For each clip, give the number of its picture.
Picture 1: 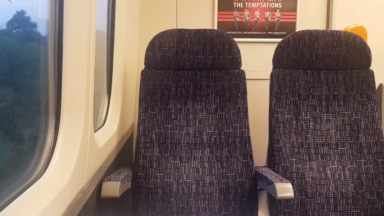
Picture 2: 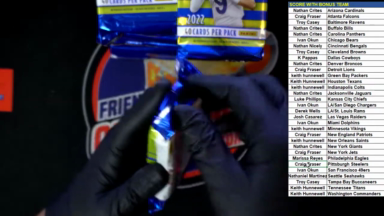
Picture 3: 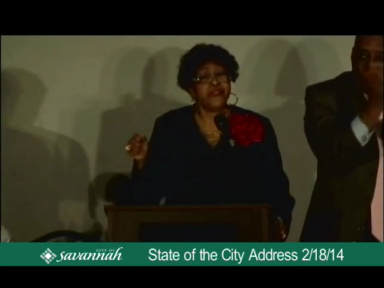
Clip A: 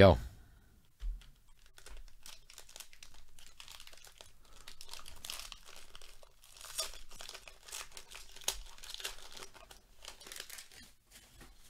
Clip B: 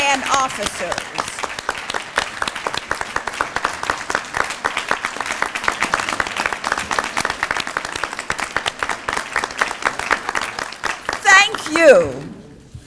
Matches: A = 2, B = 3